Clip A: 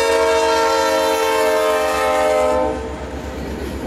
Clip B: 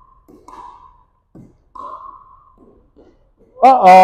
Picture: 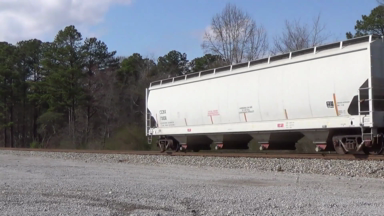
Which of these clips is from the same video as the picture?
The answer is A